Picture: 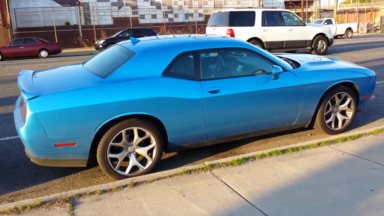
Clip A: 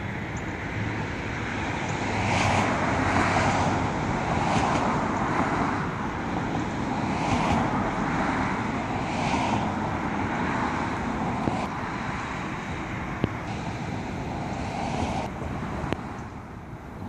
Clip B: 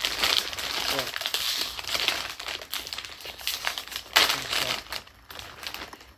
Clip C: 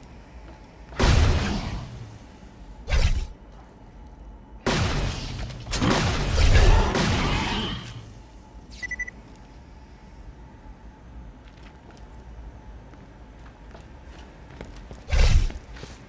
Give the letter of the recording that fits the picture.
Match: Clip A